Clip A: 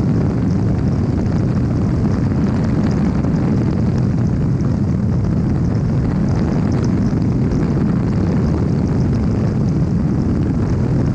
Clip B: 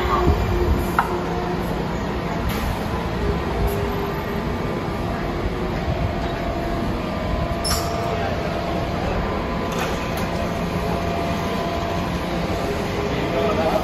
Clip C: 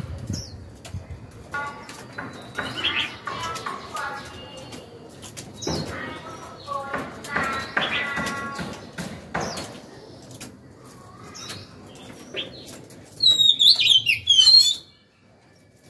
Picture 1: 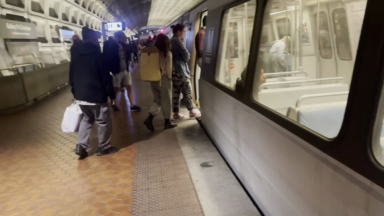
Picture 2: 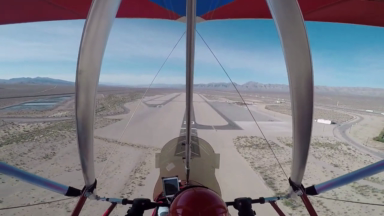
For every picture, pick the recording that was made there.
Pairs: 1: B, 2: A